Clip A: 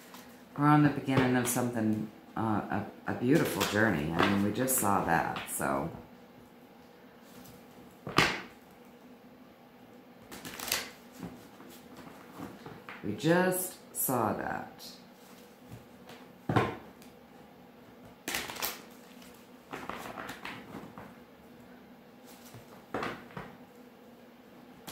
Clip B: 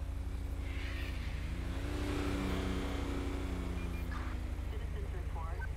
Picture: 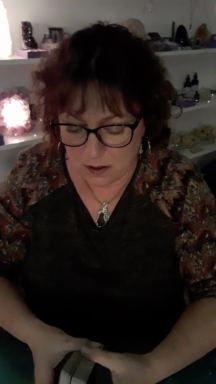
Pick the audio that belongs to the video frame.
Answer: A